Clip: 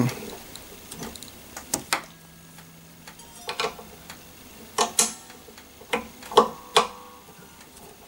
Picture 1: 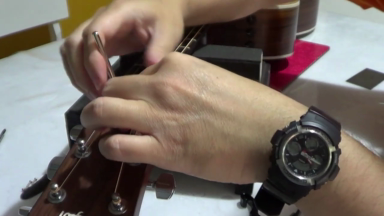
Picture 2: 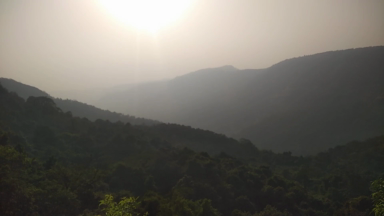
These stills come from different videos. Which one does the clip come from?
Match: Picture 1